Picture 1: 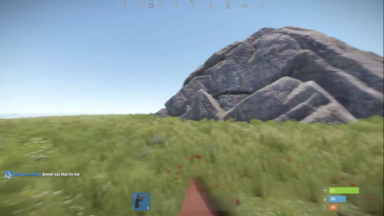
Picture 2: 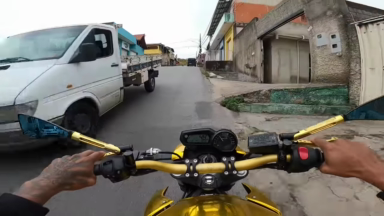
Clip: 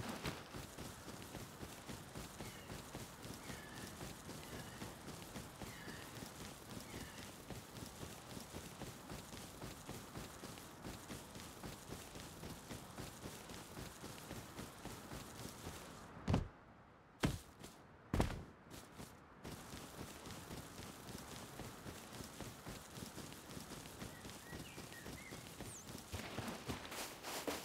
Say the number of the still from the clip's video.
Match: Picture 1